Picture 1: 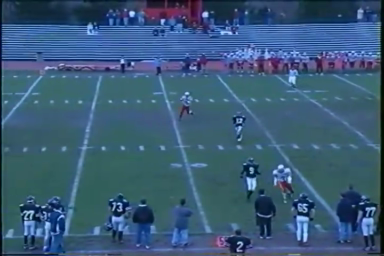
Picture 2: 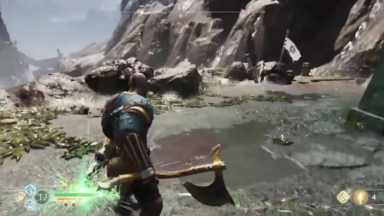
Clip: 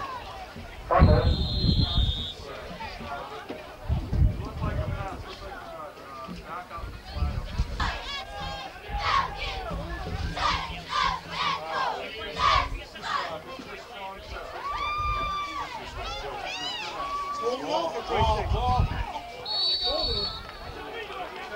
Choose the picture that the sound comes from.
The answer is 1